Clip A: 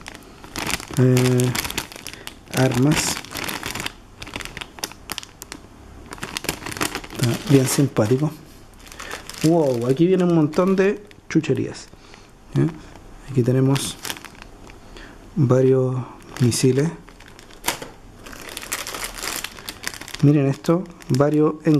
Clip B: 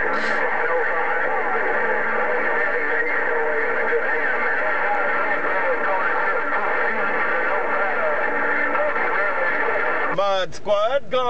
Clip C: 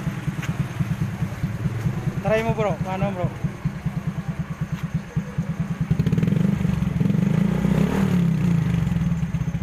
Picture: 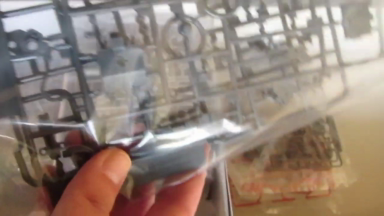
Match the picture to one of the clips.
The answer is A